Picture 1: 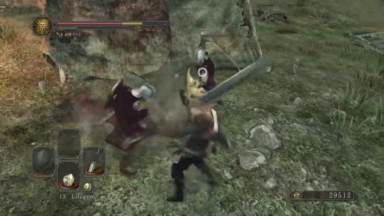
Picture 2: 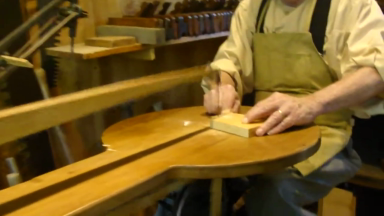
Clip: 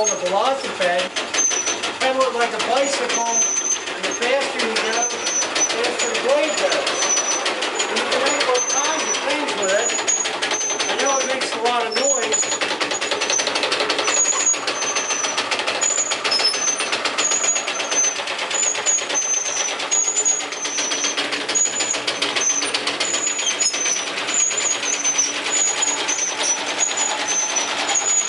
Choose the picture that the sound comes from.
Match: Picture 2